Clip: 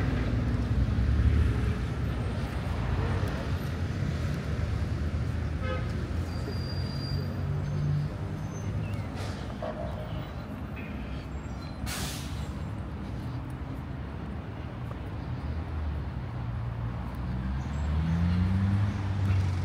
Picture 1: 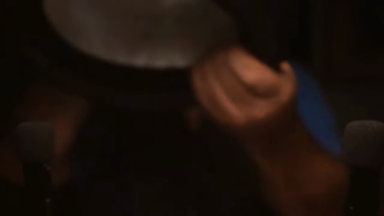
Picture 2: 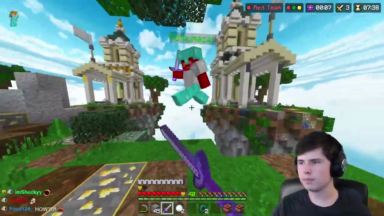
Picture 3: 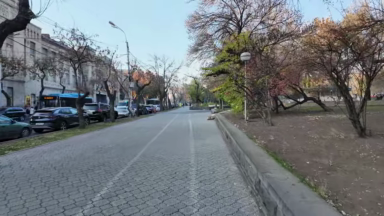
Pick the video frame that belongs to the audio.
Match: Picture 3